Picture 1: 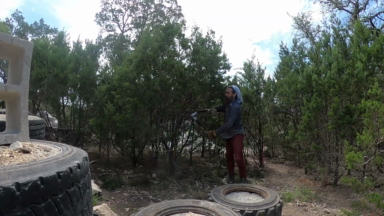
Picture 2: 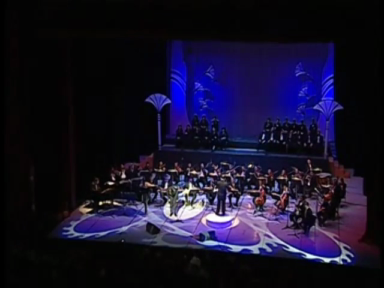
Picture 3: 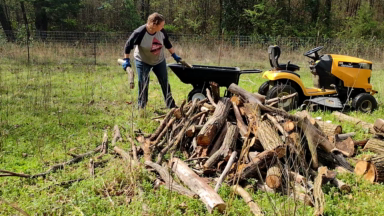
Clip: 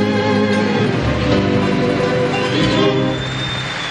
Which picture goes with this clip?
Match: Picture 2